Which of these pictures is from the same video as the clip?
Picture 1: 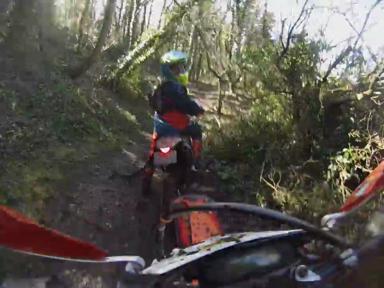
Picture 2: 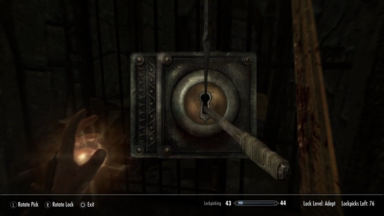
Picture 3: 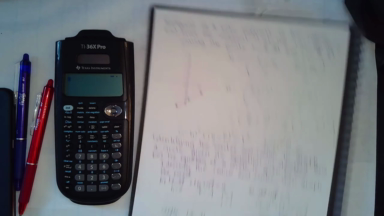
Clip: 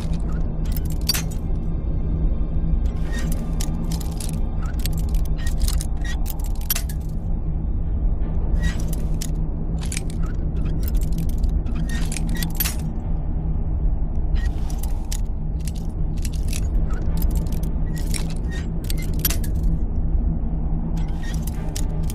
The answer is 2